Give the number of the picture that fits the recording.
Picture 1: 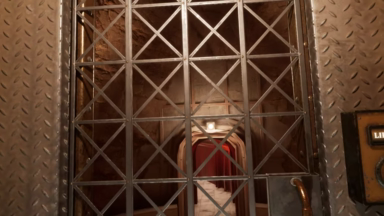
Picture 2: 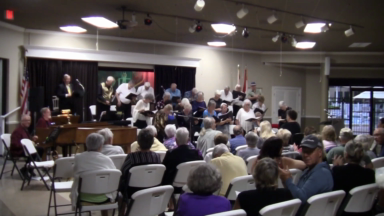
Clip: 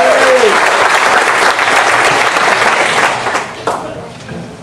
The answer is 2